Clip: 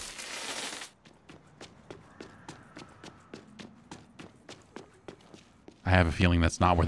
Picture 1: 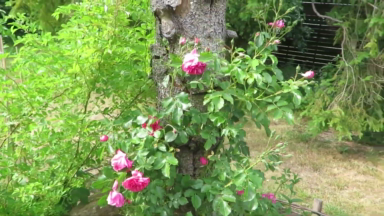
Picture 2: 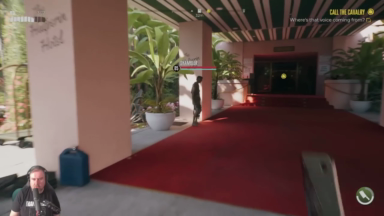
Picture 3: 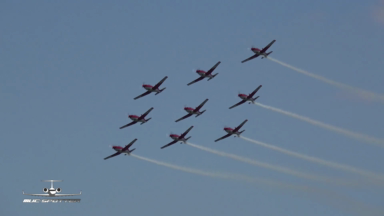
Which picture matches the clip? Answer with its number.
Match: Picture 2